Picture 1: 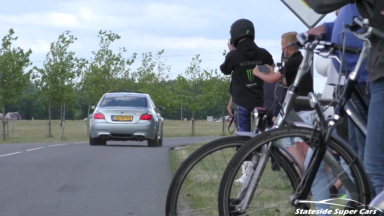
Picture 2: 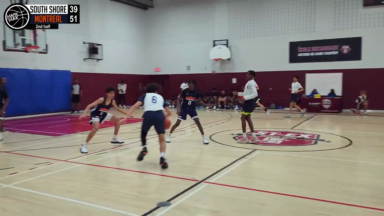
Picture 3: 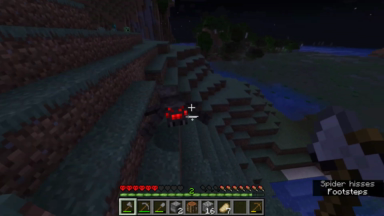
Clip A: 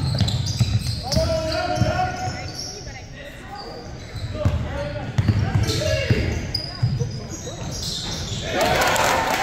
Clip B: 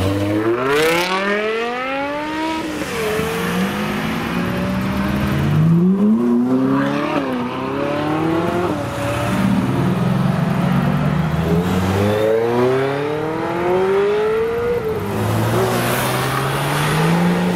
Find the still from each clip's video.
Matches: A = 2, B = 1